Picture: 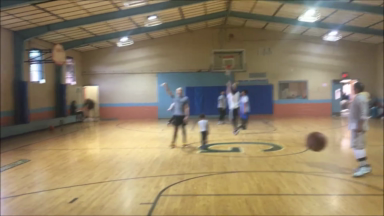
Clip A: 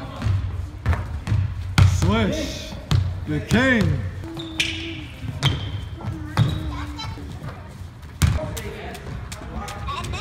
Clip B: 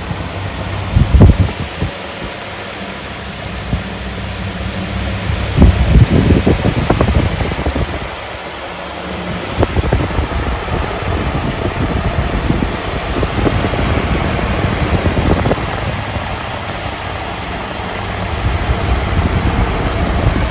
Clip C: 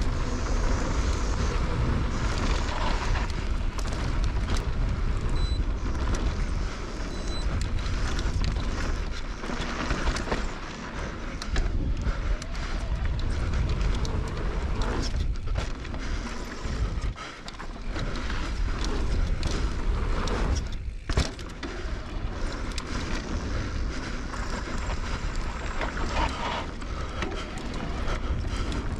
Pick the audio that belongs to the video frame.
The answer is A